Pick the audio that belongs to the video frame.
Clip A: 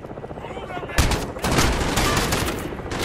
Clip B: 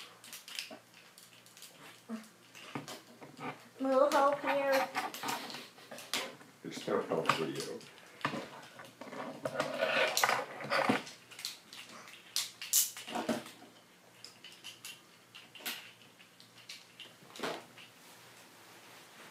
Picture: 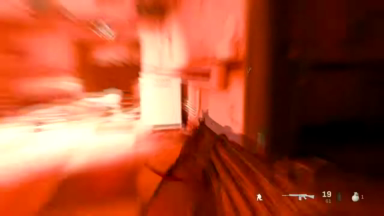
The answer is A